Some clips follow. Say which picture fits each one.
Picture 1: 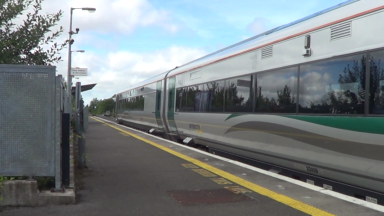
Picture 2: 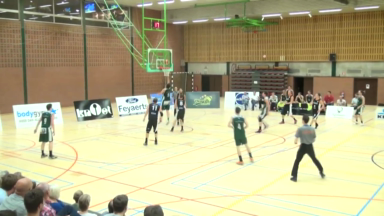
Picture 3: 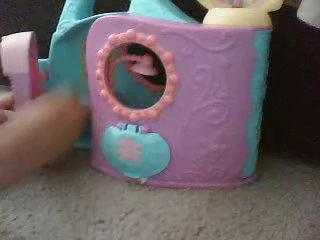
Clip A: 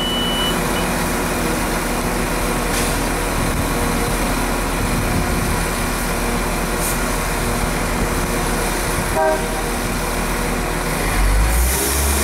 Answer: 1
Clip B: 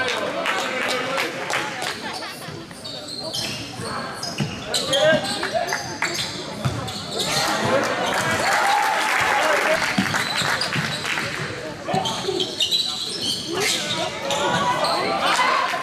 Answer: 2